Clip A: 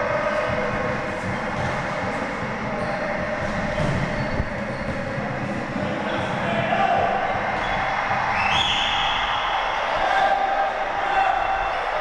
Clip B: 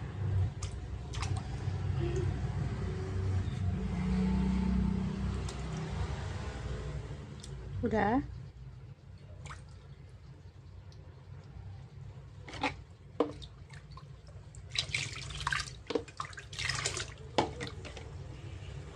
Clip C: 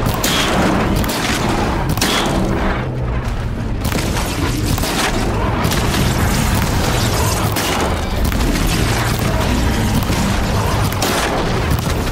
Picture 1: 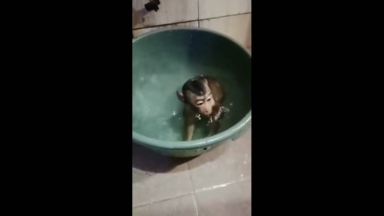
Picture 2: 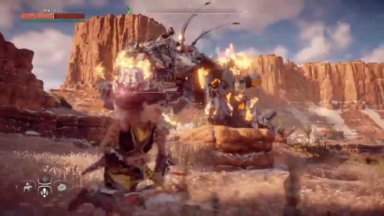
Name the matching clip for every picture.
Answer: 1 B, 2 C